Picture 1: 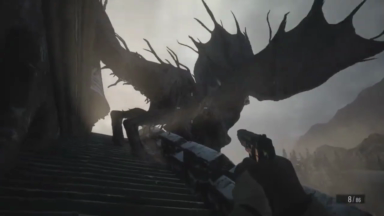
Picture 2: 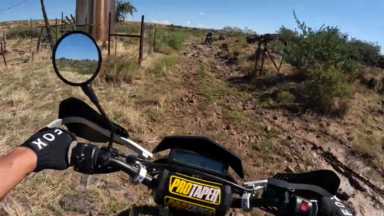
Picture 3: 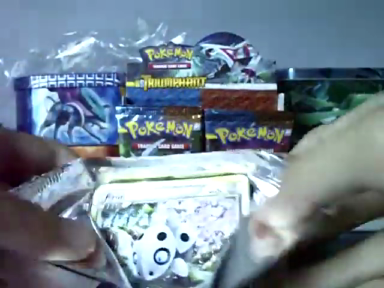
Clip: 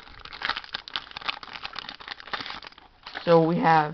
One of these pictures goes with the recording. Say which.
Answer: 3